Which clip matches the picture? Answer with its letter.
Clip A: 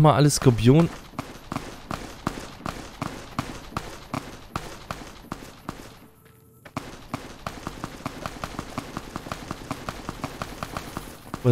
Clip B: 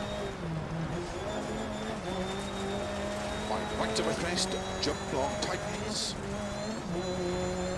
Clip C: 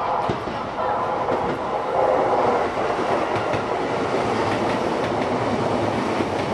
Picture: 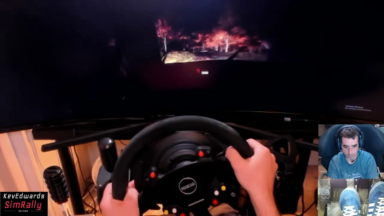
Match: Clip B